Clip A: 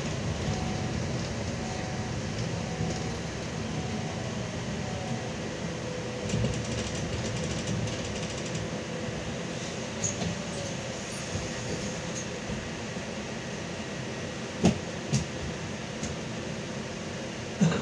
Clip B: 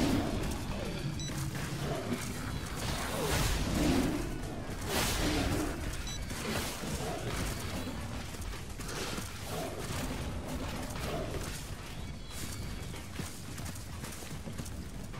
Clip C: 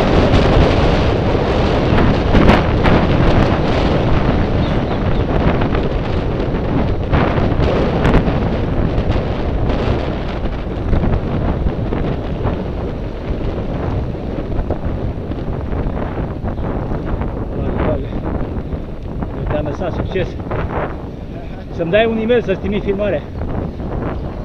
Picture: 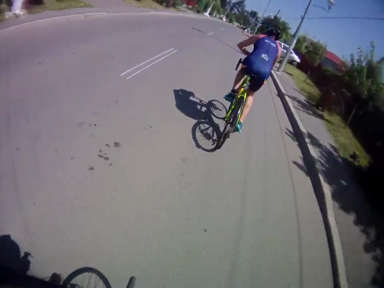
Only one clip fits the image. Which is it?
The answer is C